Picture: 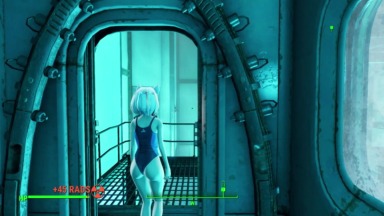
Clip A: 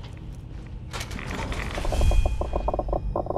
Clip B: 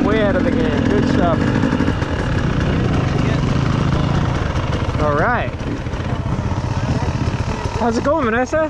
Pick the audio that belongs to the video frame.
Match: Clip A